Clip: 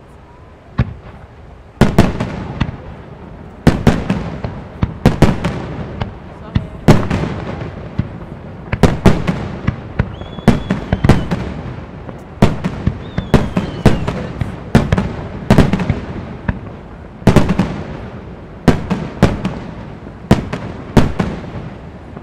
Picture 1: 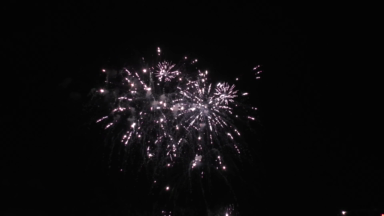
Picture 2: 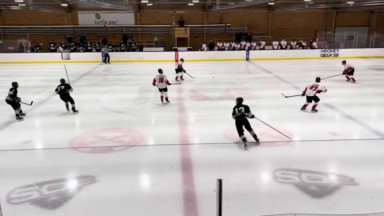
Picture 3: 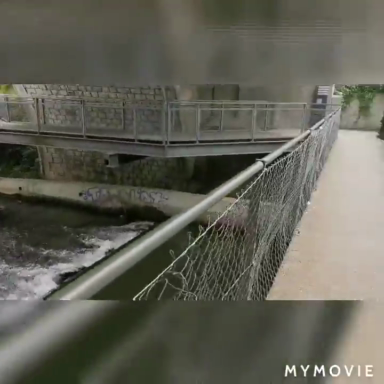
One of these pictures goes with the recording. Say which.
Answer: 1